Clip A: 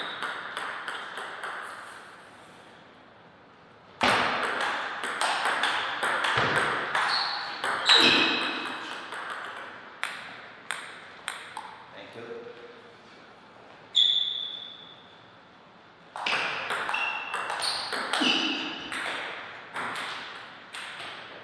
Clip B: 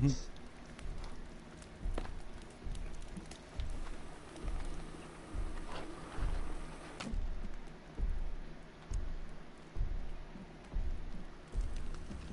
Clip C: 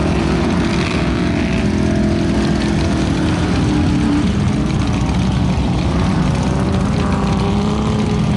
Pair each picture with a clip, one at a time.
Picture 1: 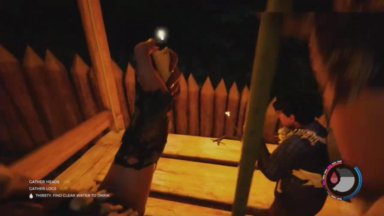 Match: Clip B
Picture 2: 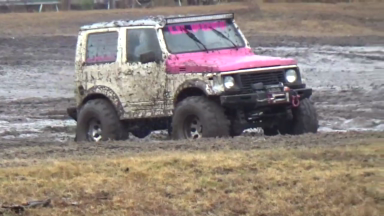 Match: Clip C